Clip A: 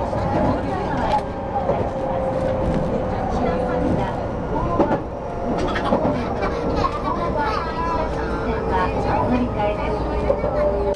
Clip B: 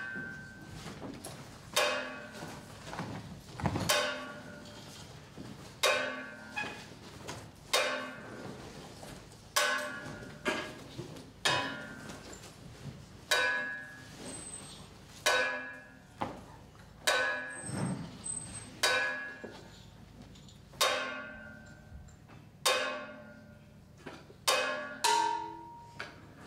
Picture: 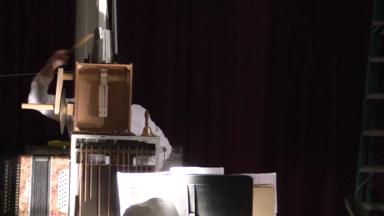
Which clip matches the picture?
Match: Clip B